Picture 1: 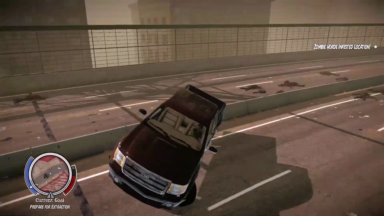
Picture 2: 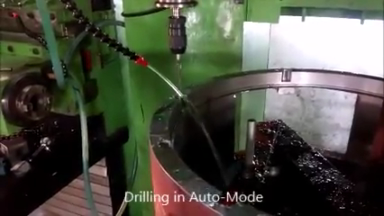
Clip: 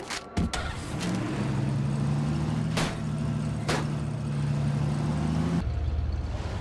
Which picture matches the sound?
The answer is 1